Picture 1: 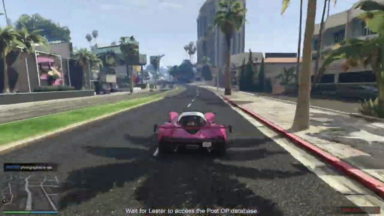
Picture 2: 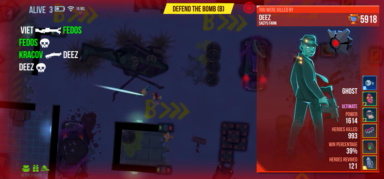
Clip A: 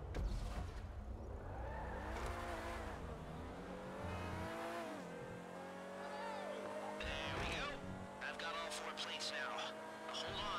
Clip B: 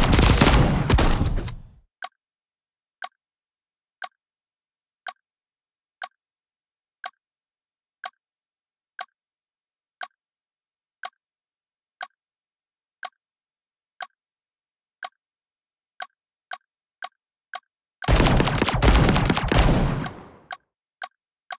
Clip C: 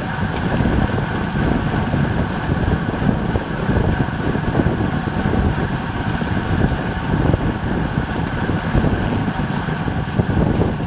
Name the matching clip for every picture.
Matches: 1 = A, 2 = B